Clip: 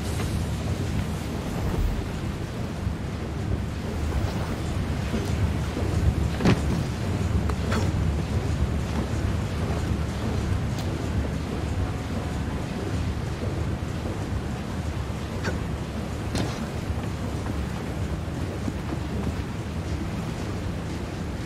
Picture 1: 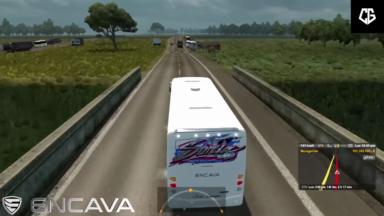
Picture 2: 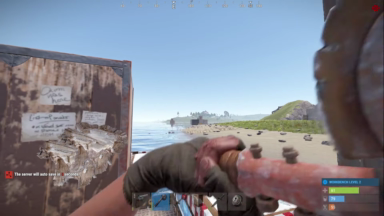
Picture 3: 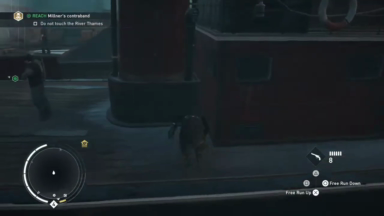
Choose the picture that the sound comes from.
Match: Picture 3